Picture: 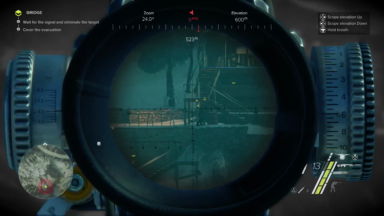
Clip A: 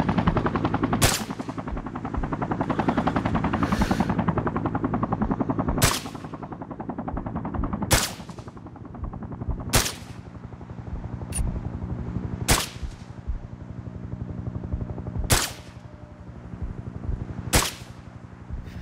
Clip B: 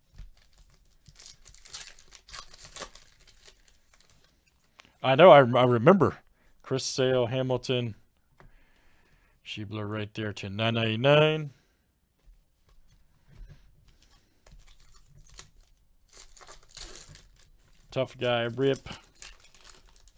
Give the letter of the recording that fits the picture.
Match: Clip A